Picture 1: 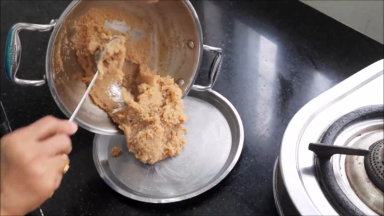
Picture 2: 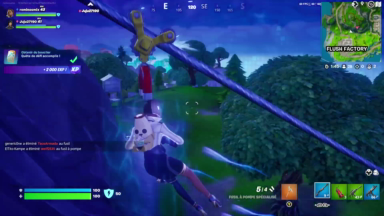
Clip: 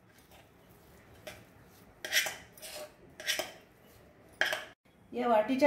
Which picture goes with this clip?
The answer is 1